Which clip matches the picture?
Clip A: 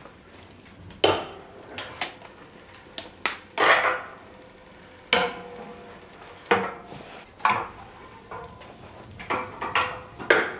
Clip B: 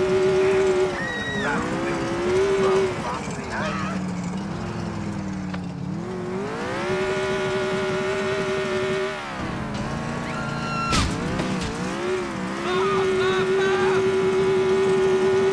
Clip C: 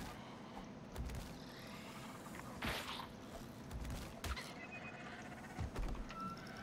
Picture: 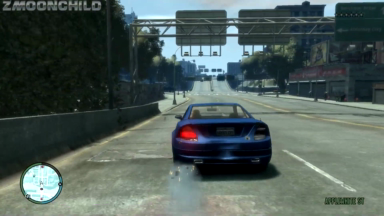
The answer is B